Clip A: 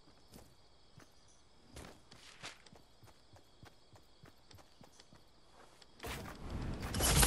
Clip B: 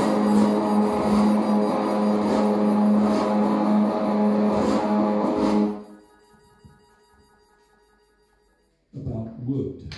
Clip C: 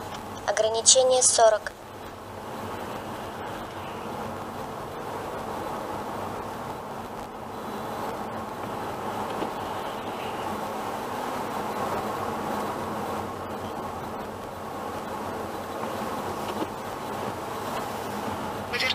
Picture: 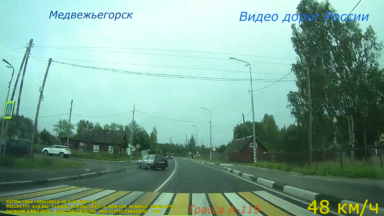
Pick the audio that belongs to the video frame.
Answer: C